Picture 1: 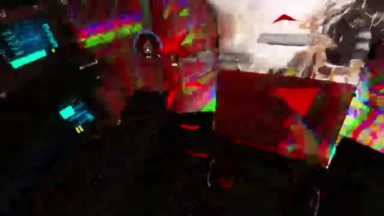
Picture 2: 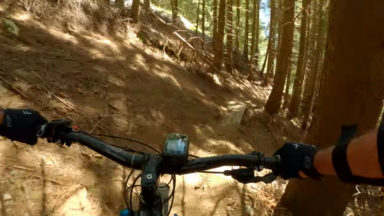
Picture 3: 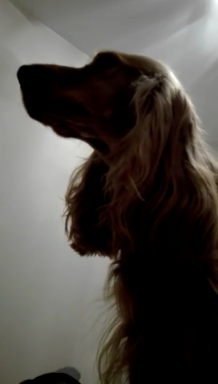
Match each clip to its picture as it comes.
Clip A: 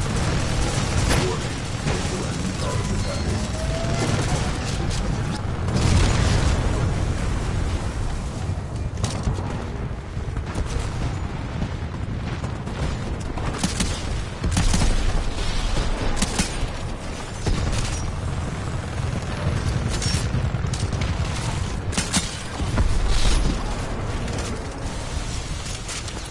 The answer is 1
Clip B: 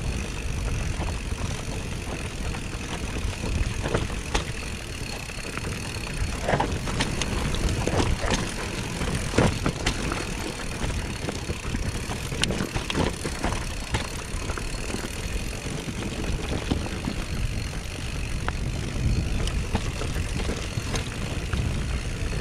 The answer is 2